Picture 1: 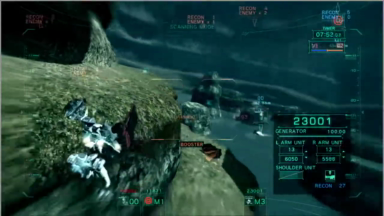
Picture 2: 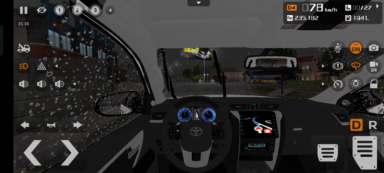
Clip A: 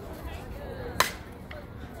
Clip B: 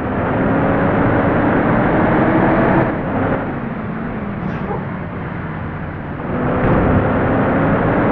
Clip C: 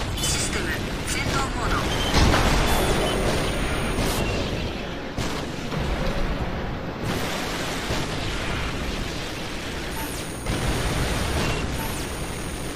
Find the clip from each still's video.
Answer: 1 C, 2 B